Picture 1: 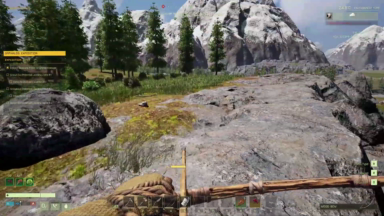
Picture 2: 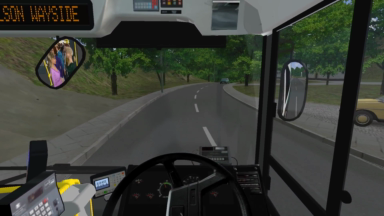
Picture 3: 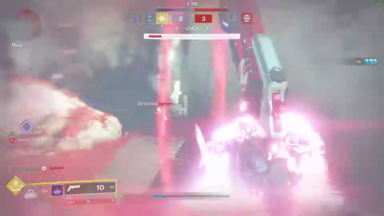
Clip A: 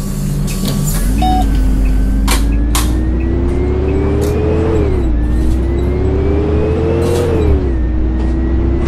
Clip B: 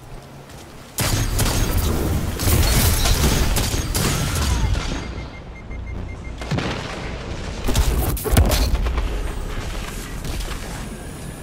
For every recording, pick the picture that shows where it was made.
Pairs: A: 2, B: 3